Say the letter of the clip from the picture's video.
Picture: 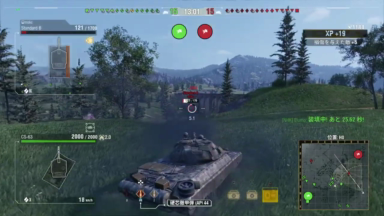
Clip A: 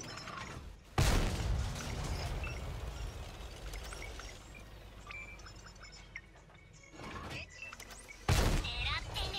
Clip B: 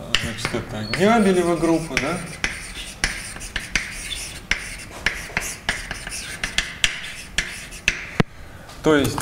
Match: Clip A